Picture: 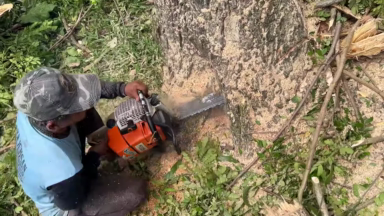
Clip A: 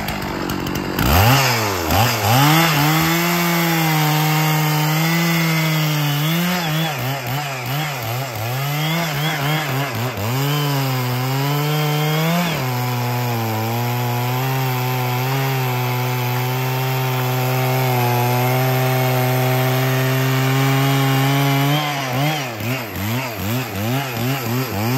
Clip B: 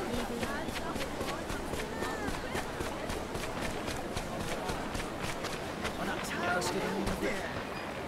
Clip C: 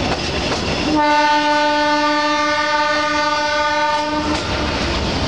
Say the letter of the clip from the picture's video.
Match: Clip A